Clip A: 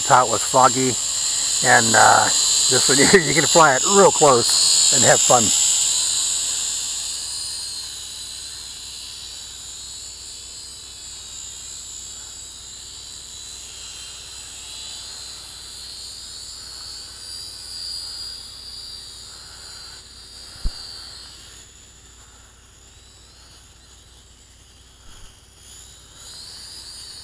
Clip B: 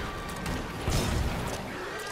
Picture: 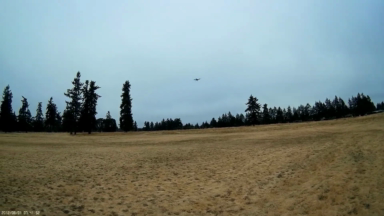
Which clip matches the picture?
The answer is A